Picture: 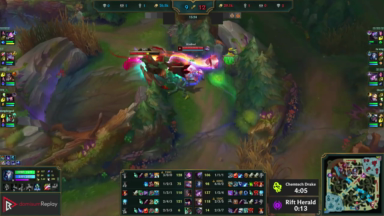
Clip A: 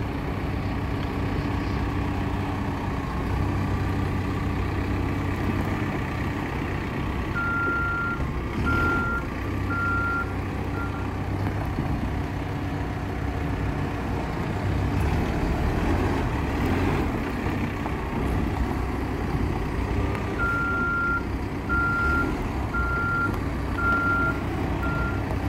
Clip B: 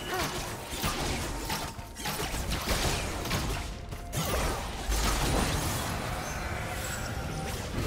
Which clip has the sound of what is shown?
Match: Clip B